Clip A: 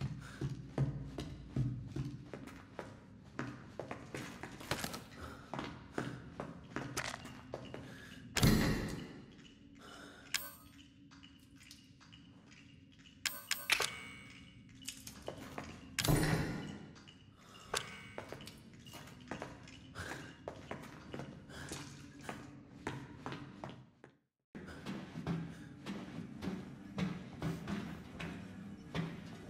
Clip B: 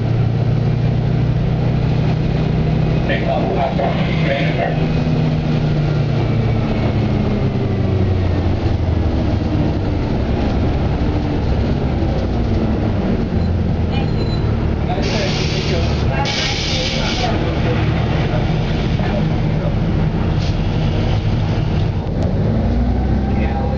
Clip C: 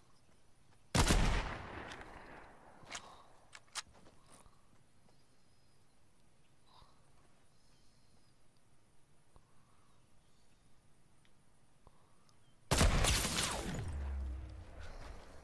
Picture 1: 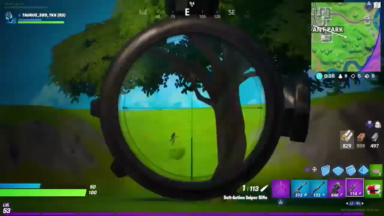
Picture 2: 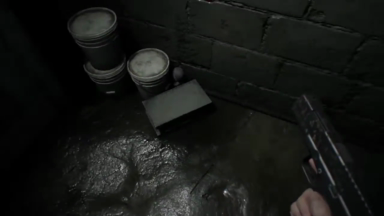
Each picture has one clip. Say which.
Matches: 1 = C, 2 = A